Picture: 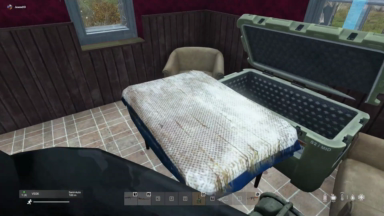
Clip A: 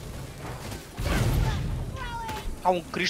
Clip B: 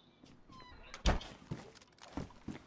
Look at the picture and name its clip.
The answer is B